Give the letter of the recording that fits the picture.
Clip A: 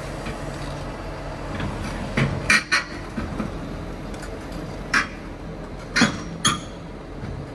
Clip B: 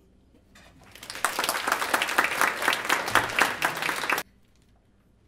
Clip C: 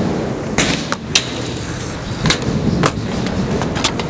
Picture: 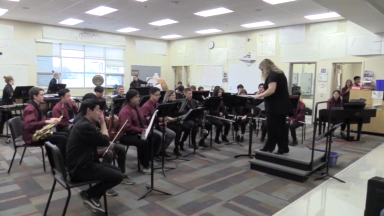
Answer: B